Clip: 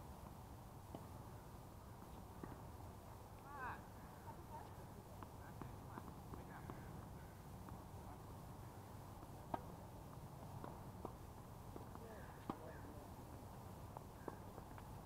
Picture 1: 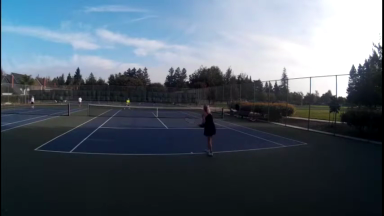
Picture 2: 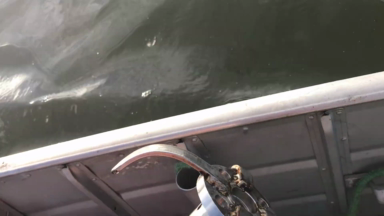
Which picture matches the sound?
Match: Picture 1